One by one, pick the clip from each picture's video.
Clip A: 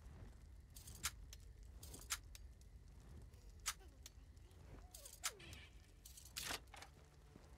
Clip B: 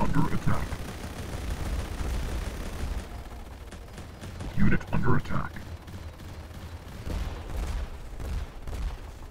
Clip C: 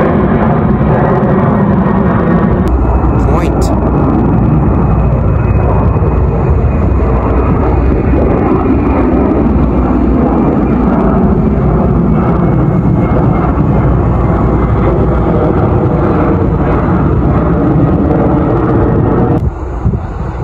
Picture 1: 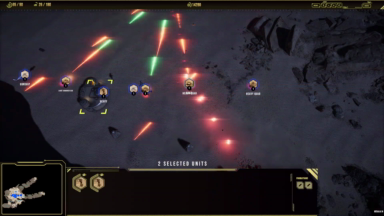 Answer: B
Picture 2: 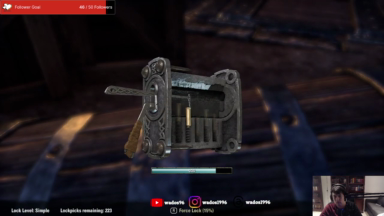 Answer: A